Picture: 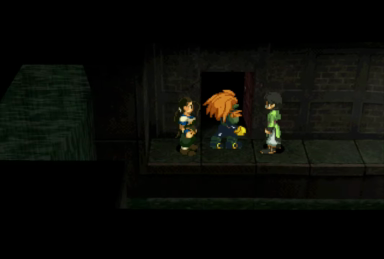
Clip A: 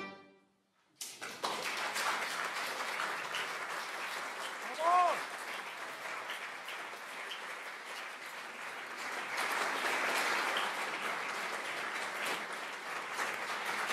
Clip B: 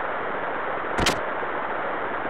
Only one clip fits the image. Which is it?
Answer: B